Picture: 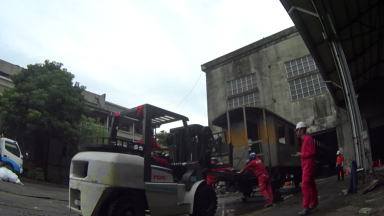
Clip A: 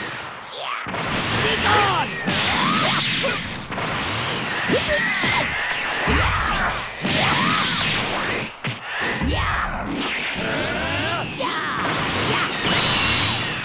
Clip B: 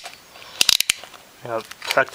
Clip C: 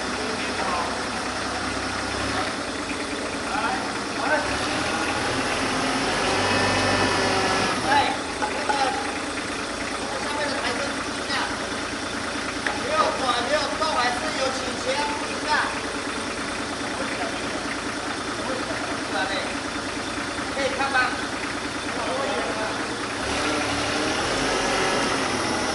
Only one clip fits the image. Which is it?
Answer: C